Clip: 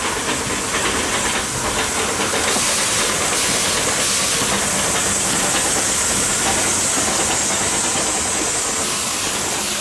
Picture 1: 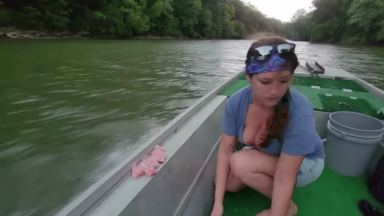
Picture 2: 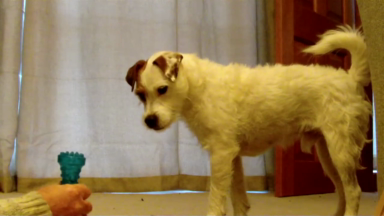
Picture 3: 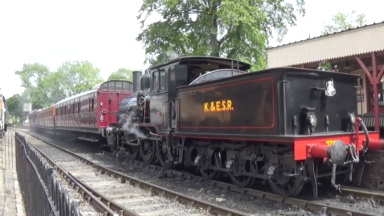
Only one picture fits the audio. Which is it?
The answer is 3